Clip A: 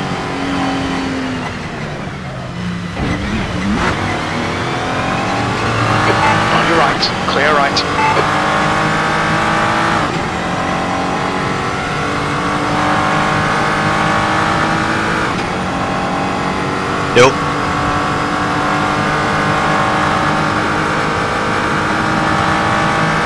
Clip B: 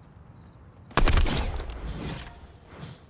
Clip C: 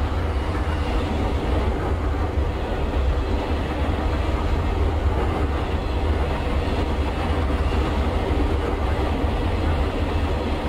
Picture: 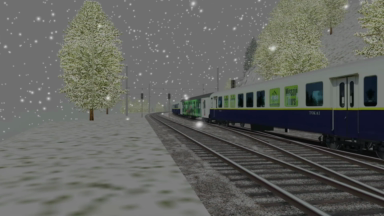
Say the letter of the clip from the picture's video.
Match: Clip C